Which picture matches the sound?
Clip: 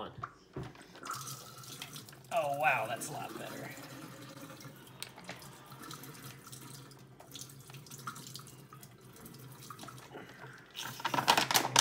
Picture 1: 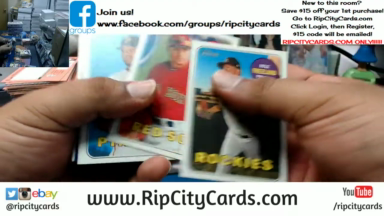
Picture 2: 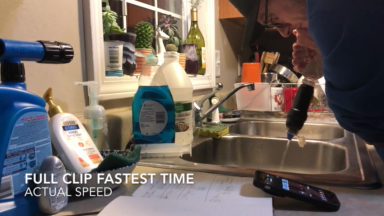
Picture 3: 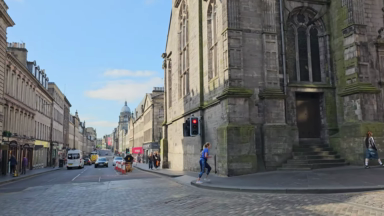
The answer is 2